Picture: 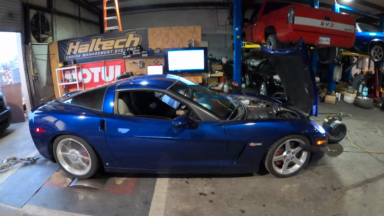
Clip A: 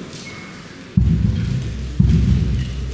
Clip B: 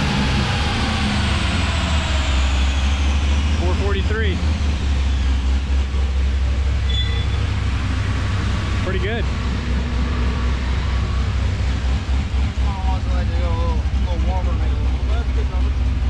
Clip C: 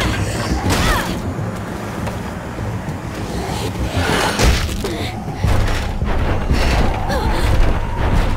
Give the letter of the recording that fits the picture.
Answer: B